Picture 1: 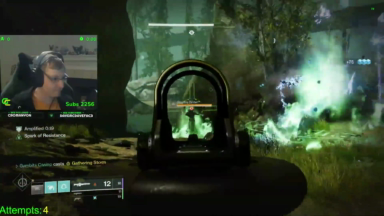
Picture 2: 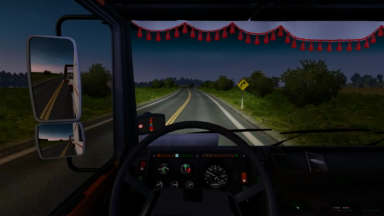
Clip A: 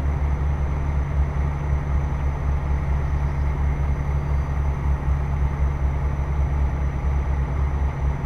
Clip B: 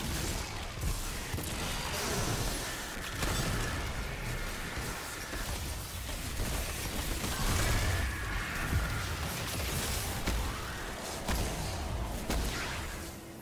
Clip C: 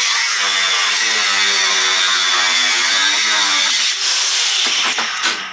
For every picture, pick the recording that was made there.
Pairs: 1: B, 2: A